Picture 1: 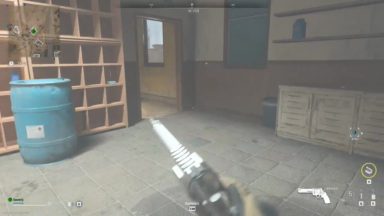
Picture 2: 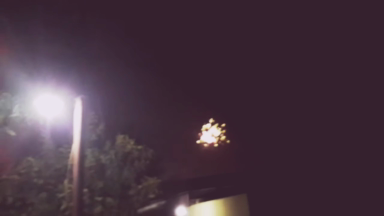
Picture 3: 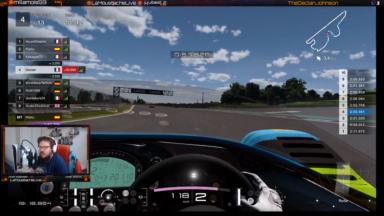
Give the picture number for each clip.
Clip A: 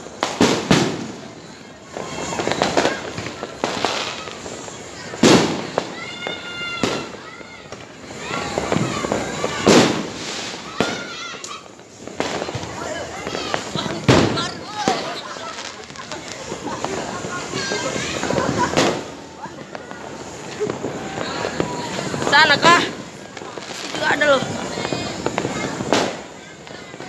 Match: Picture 2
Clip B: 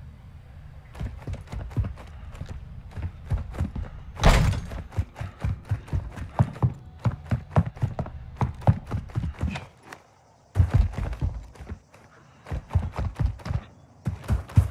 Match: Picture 1